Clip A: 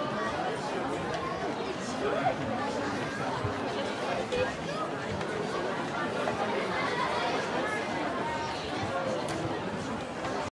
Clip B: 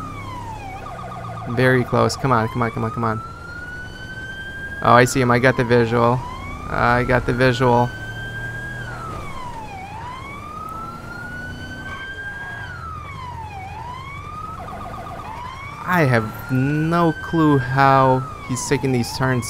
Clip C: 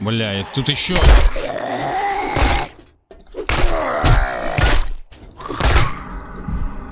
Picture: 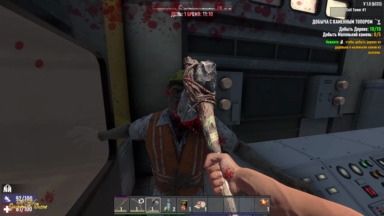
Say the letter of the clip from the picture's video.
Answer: C